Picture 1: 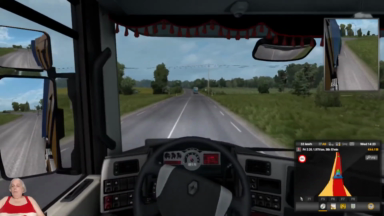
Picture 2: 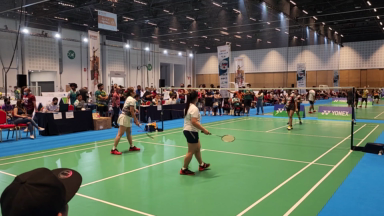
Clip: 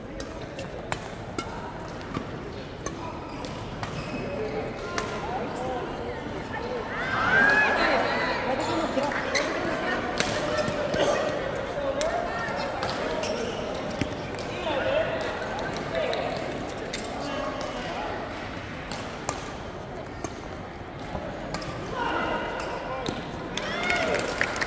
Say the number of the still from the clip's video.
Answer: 2